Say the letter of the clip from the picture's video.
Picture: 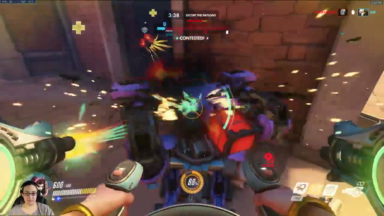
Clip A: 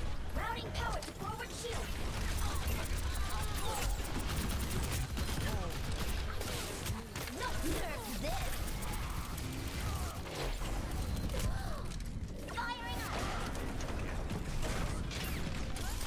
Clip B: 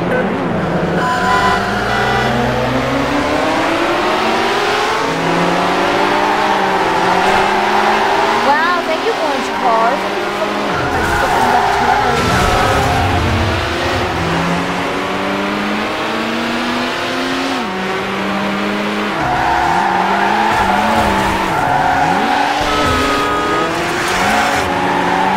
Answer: A